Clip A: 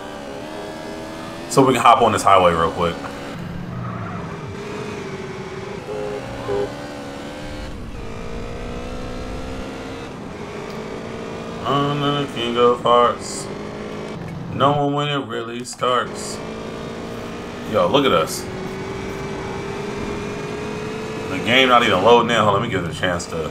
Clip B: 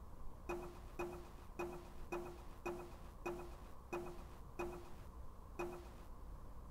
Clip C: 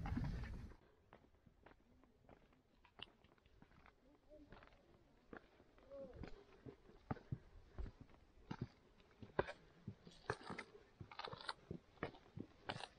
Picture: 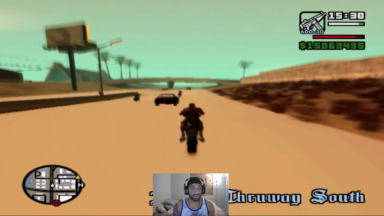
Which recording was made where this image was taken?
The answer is A